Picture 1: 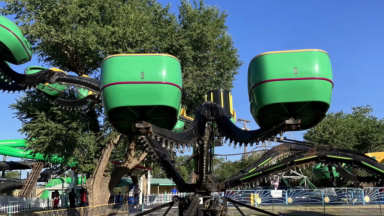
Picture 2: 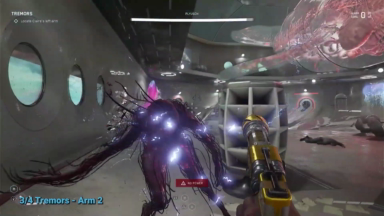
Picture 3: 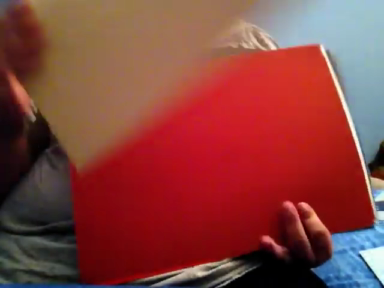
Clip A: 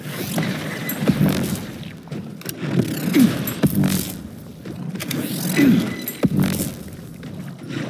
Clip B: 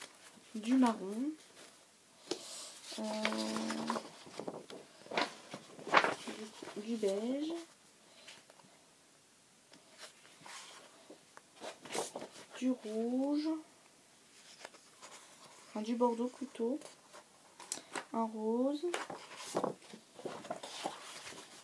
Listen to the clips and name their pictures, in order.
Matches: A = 2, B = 3